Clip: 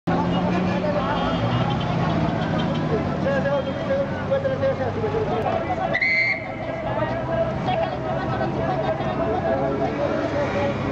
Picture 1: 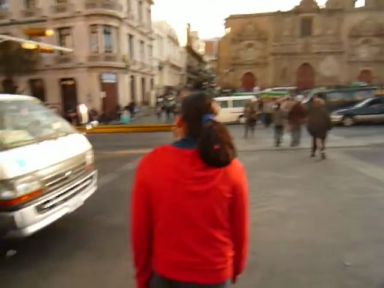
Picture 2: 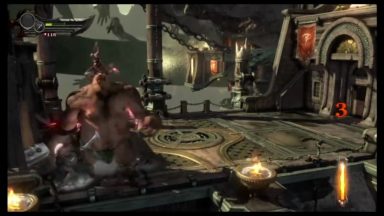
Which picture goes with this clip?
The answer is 1